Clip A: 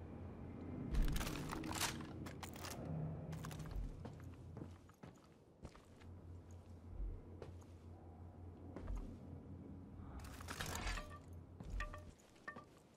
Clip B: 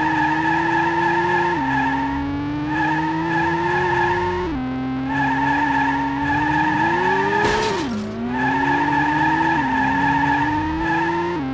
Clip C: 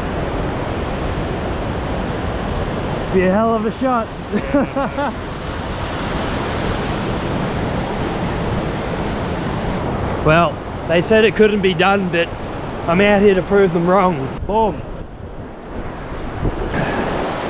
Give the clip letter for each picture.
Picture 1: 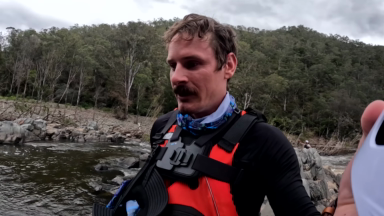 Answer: C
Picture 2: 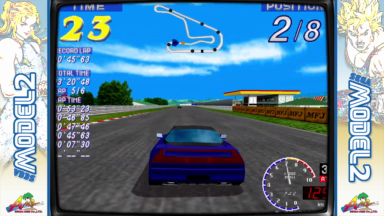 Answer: B